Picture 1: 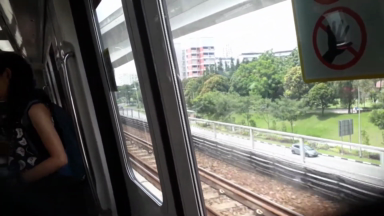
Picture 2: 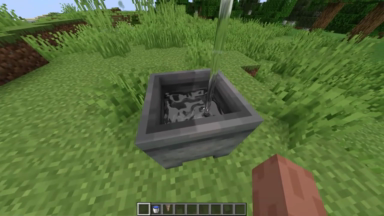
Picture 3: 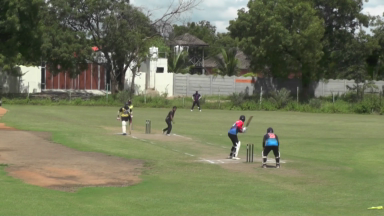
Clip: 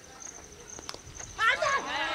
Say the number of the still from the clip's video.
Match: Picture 3